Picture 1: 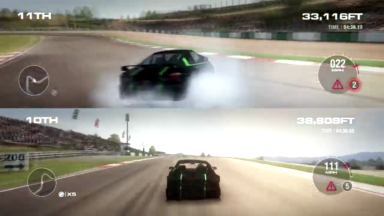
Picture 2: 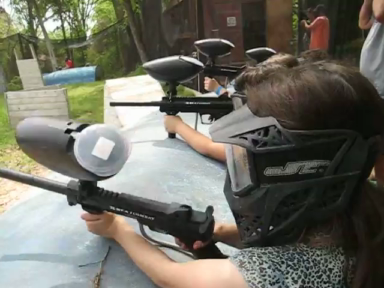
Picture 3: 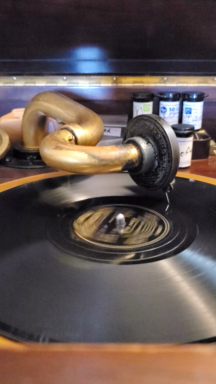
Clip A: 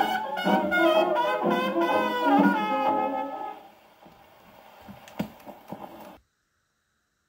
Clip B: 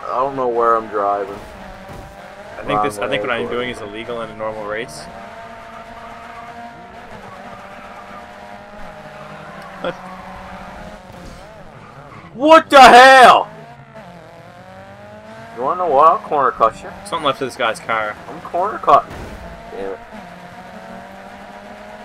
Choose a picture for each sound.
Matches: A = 3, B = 1